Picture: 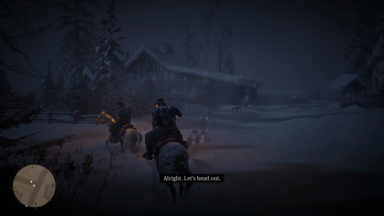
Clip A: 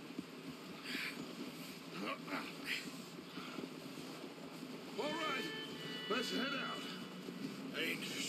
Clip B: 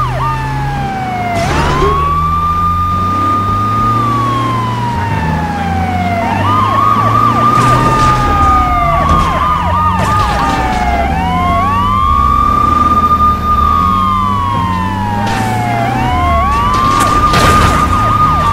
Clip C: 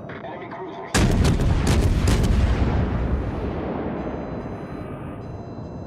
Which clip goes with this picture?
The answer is A